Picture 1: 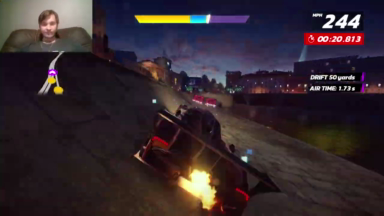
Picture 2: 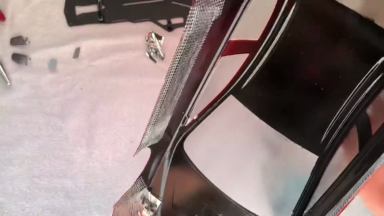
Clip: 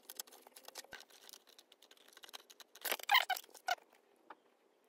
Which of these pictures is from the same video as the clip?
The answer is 2